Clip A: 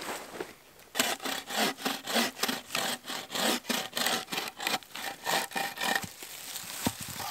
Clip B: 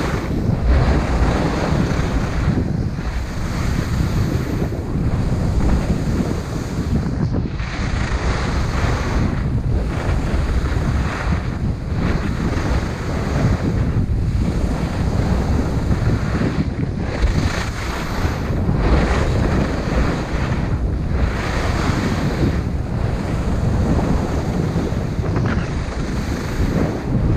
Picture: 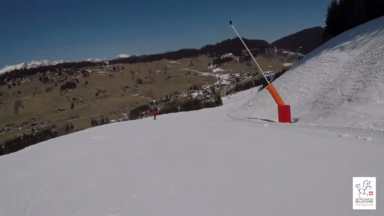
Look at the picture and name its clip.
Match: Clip B